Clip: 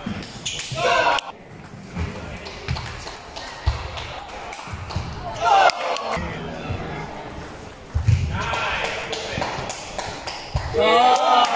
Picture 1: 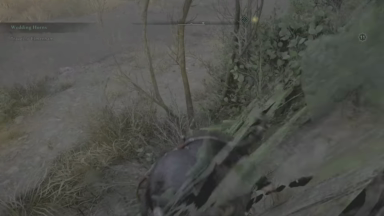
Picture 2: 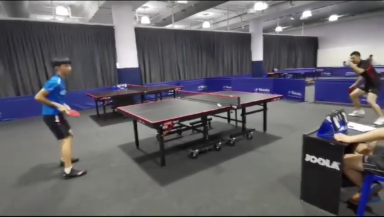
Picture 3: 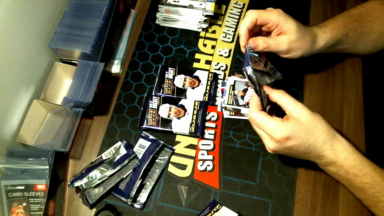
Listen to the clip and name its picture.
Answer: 2